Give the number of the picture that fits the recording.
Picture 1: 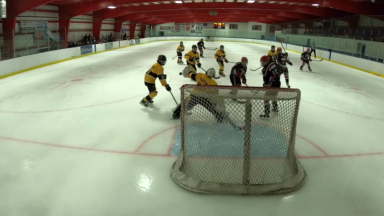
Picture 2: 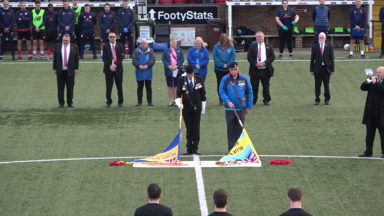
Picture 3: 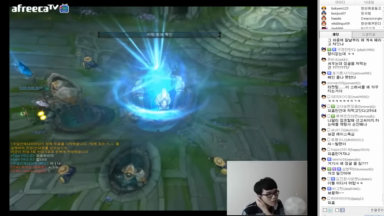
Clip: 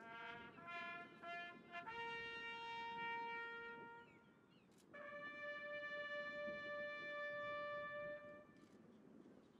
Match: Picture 2